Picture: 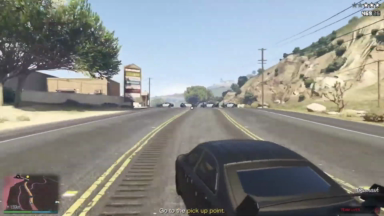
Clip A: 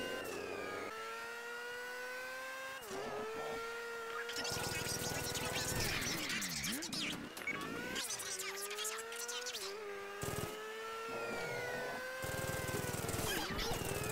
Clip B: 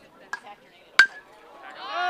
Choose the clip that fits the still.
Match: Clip A